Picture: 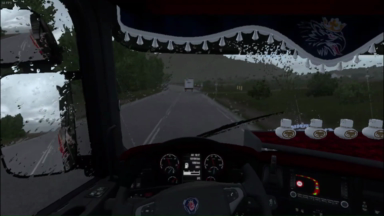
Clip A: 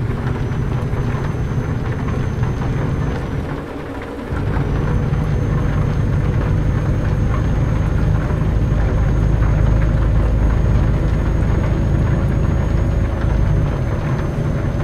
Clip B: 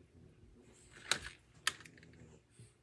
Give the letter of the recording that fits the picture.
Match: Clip A